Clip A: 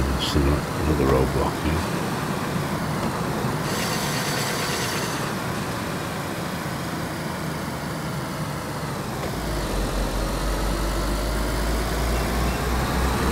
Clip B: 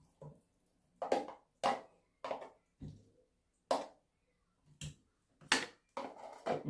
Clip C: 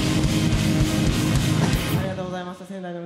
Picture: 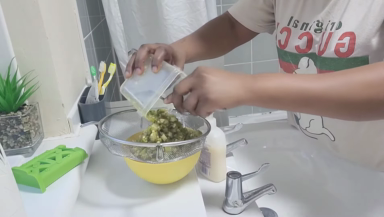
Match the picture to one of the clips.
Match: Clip B